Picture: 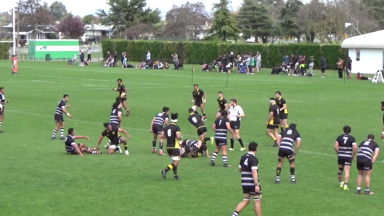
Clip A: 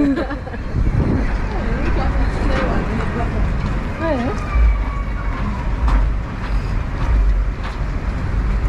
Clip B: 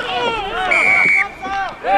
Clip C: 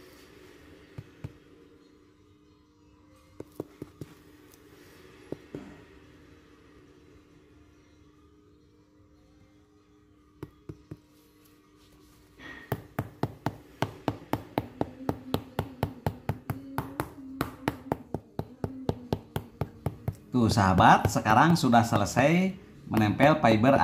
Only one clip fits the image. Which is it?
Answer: B